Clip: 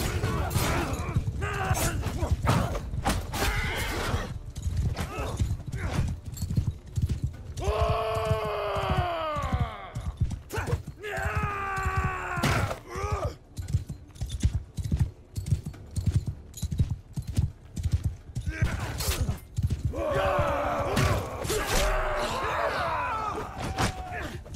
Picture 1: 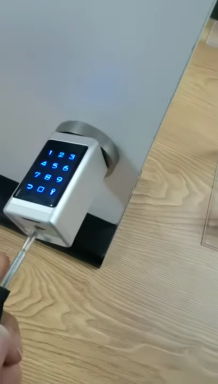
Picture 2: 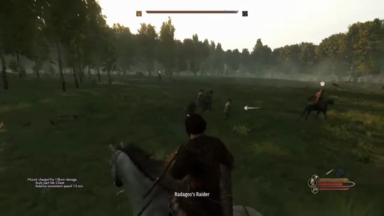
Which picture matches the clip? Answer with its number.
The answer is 2